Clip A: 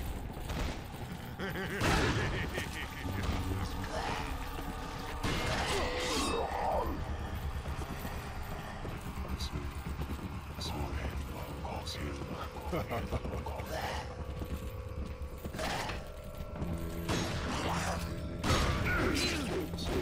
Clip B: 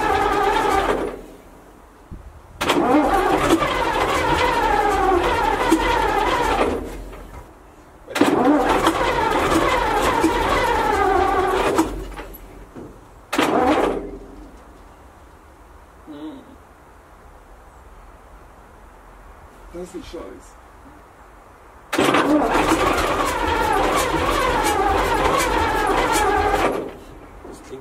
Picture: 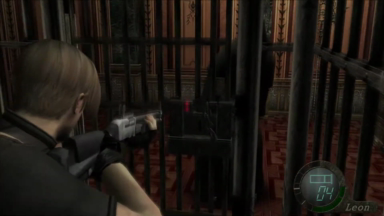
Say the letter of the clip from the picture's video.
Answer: A